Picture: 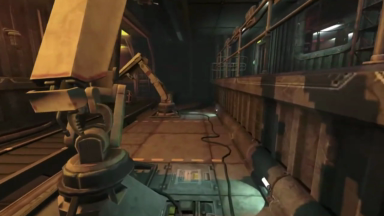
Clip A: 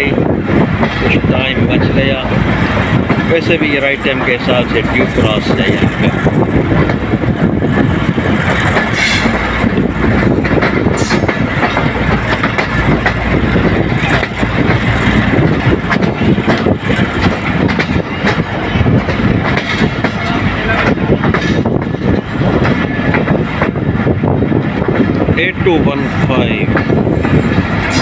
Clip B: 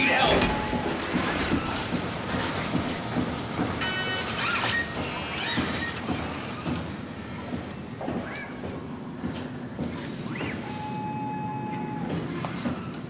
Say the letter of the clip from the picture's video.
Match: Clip B